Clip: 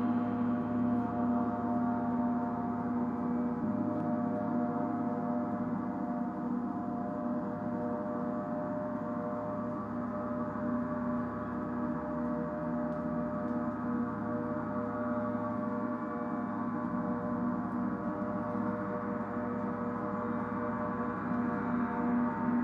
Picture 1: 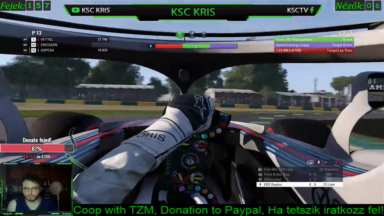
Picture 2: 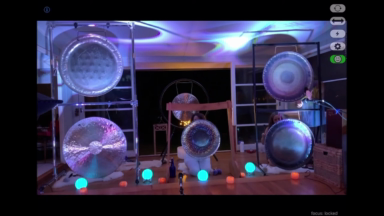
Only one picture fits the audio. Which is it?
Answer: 2